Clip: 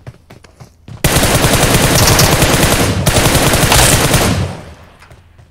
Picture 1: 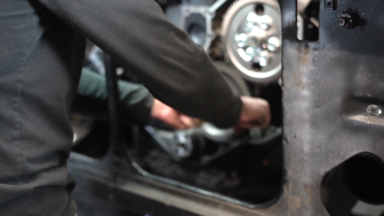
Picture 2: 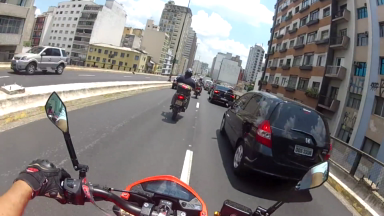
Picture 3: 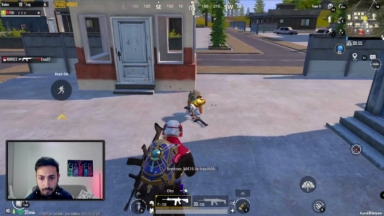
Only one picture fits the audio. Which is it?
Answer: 3